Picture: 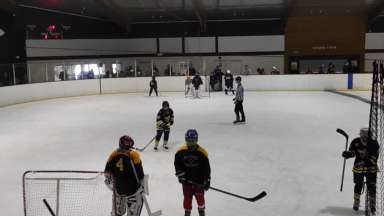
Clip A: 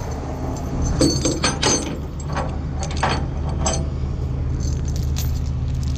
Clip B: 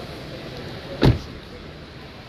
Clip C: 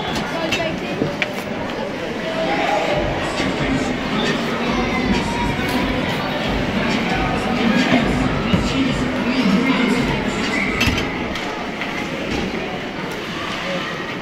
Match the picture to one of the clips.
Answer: C